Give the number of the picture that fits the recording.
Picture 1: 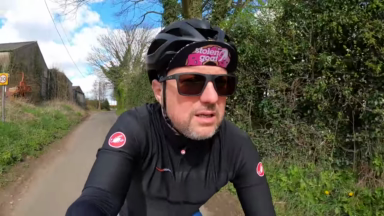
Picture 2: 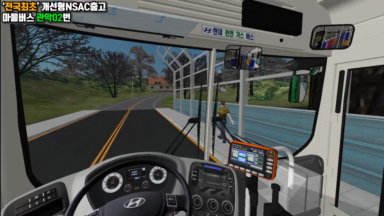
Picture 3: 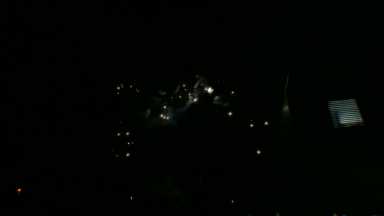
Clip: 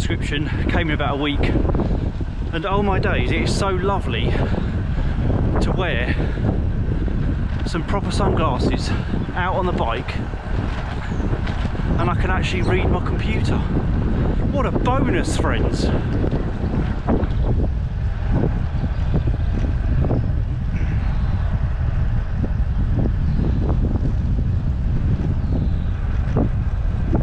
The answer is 1